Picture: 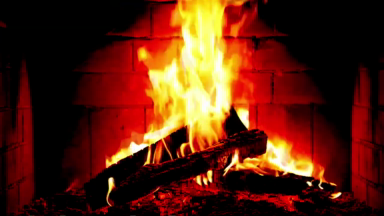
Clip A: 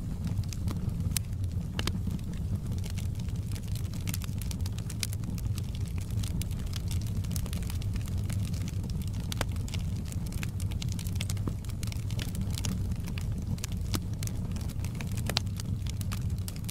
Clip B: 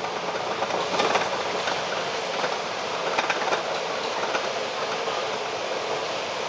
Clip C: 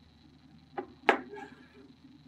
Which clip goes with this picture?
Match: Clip A